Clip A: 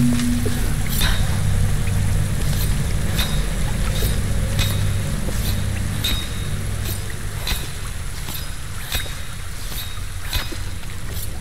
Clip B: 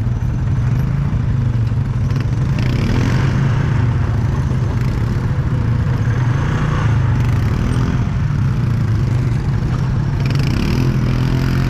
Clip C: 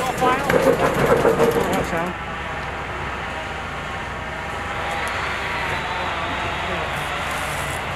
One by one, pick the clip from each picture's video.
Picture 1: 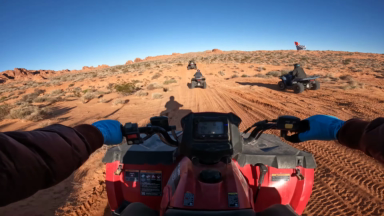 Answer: B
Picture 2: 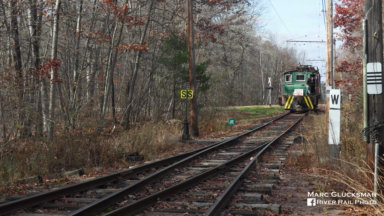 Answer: C